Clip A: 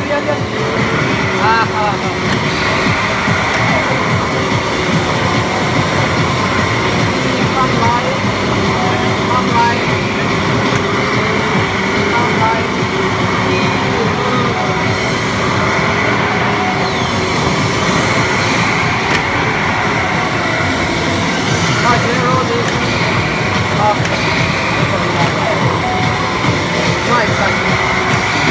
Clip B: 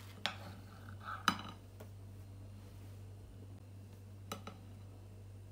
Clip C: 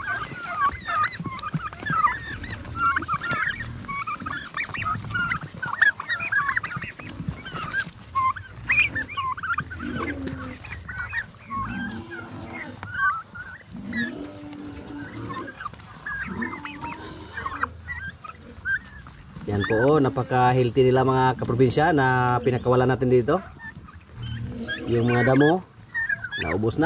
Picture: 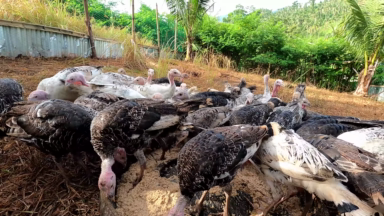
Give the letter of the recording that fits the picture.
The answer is C